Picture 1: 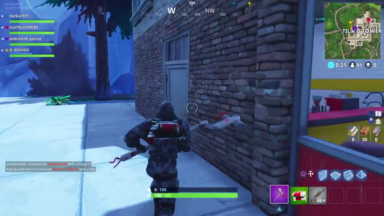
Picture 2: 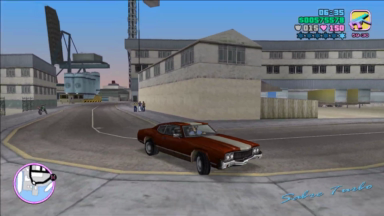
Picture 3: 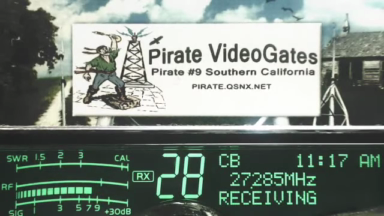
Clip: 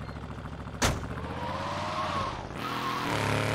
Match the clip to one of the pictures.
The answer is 2